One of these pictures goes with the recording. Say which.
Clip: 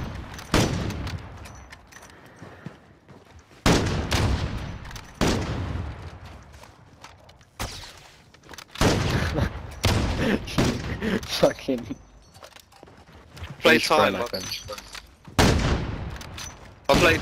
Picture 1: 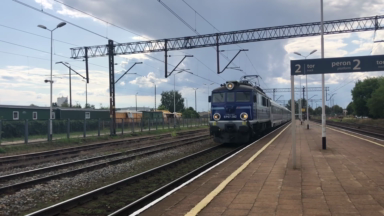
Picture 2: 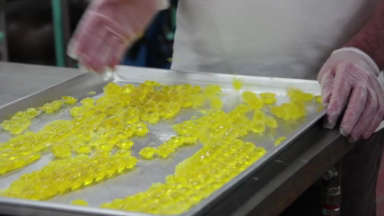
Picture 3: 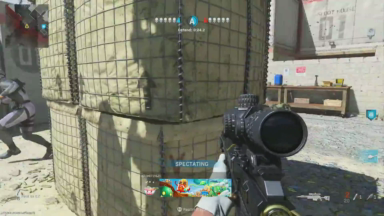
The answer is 3